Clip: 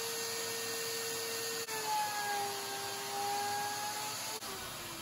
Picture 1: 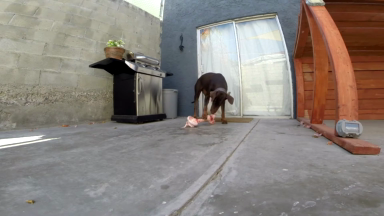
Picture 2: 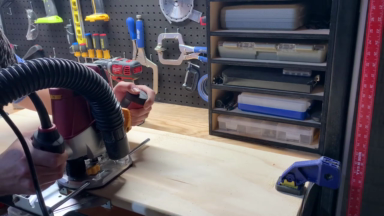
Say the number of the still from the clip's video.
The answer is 2